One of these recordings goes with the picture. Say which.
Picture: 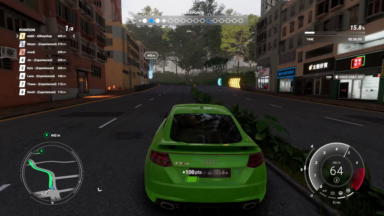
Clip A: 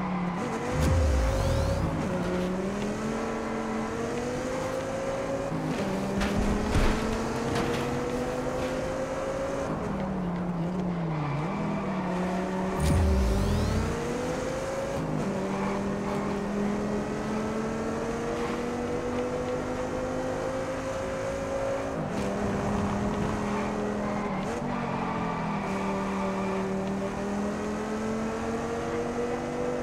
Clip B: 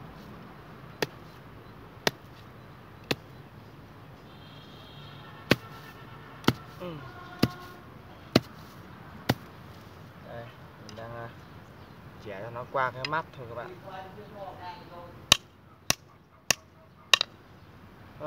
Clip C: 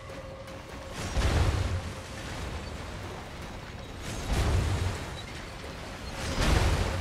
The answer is A